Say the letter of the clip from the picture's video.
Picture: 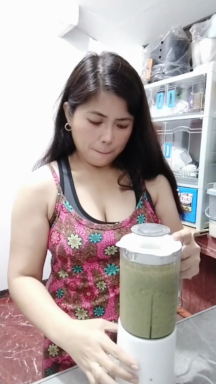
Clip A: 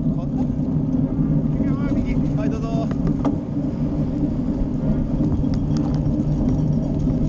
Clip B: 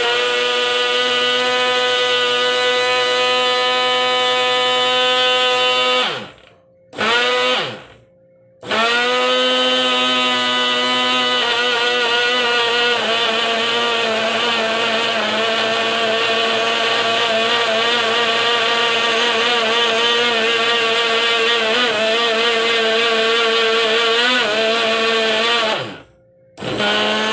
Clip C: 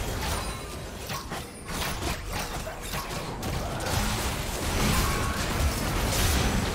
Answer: B